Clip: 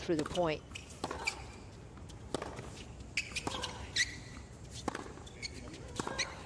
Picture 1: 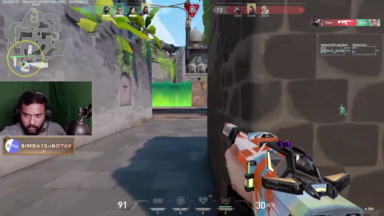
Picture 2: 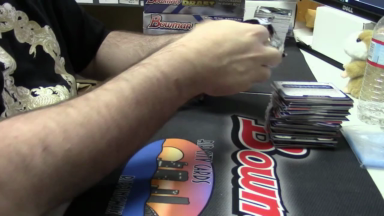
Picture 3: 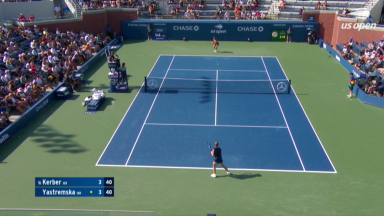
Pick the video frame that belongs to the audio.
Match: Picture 3